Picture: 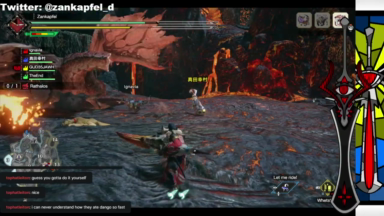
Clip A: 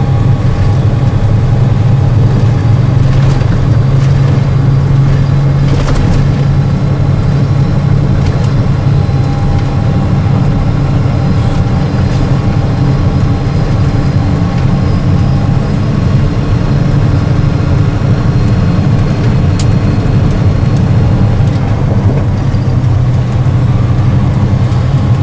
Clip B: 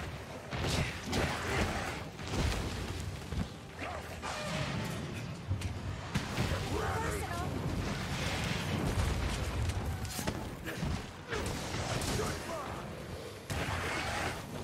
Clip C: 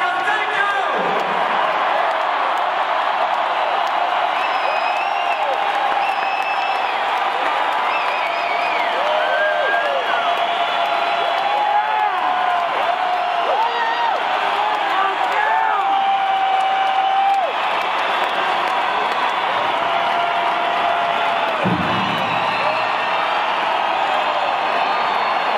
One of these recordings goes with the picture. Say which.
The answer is B